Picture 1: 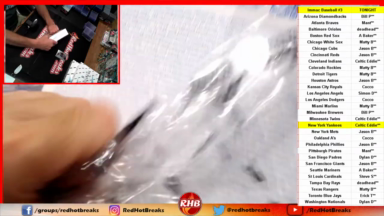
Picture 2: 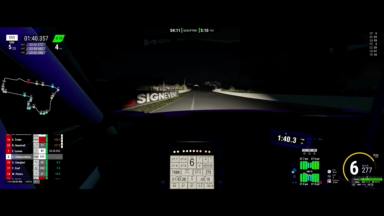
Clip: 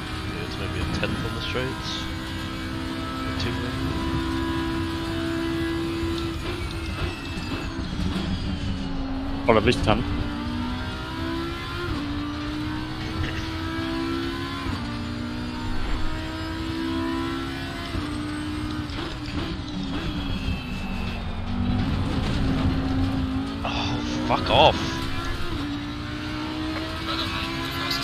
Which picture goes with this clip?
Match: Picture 2